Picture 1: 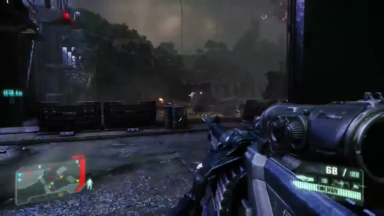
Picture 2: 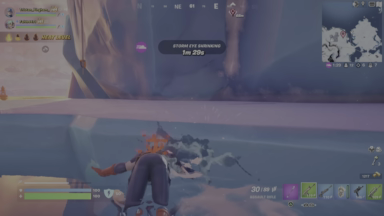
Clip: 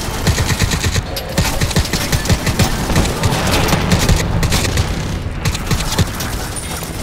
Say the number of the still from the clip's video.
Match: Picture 1